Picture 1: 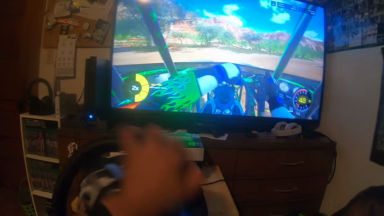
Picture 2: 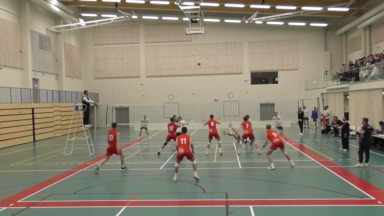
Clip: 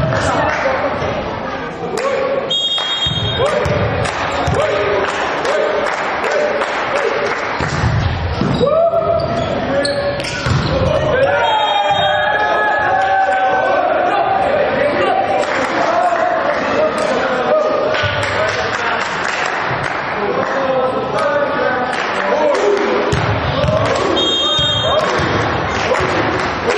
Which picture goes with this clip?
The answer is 2